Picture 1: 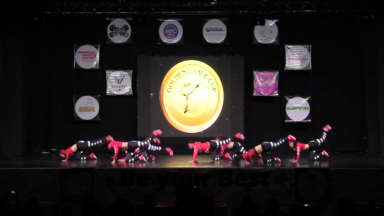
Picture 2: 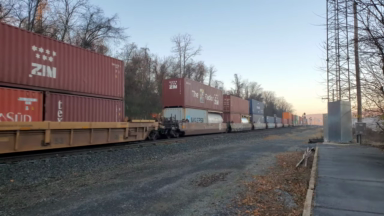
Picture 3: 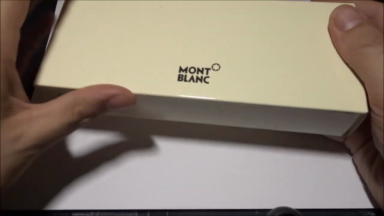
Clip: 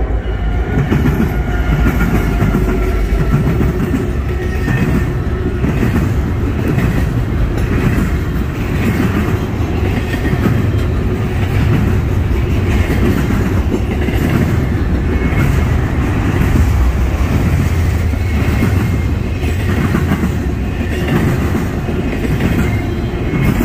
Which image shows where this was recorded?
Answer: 2